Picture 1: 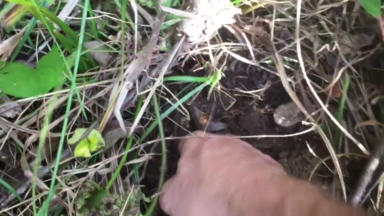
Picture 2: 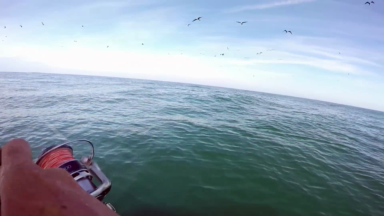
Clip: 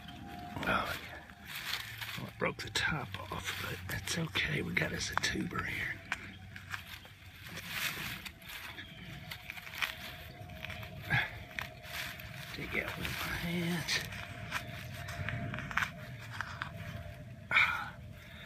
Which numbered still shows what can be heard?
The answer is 1